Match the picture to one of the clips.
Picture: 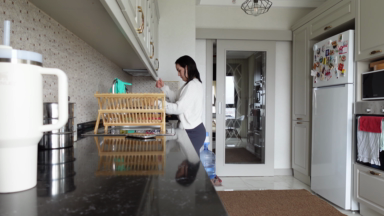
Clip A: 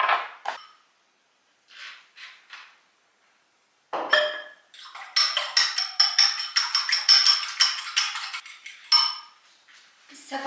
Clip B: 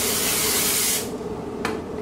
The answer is A